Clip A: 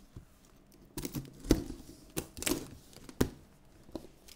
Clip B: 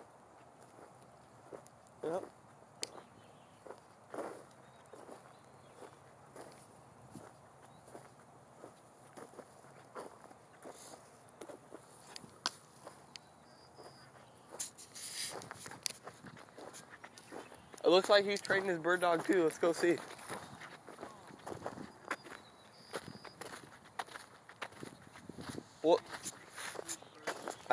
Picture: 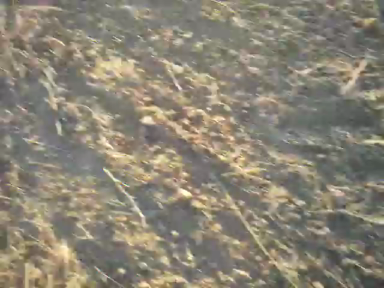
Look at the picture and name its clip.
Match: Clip B